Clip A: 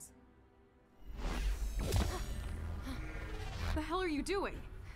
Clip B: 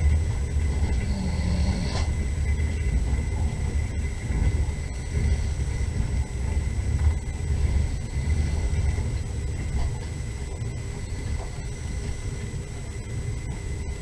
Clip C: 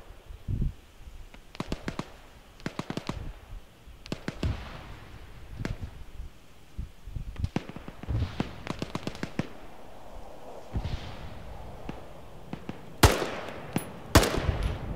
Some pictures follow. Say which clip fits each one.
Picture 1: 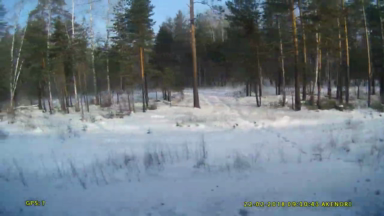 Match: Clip B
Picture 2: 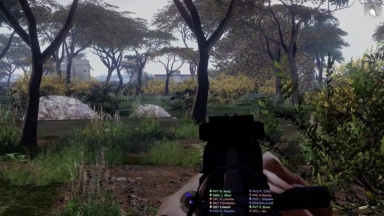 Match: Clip C